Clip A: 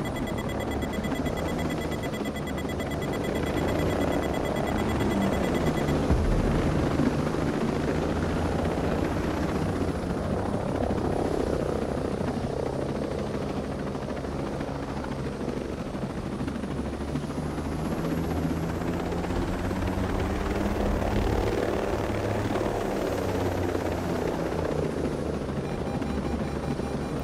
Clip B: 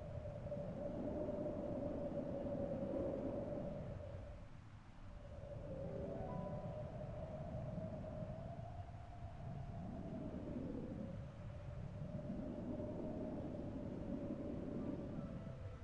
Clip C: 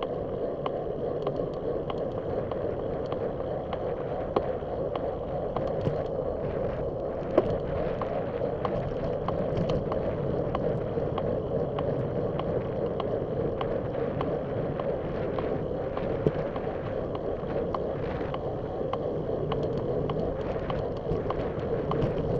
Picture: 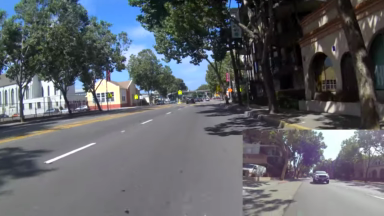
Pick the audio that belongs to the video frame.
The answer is C